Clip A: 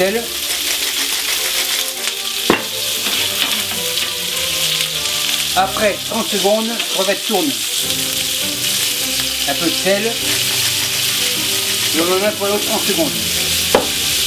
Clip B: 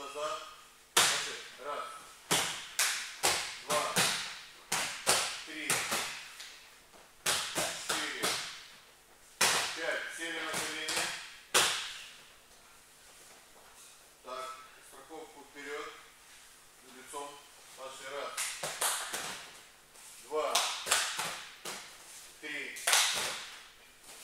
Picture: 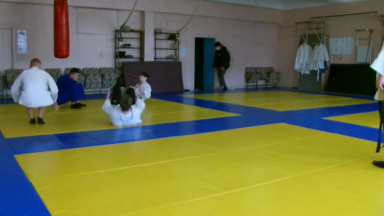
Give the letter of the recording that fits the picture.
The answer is B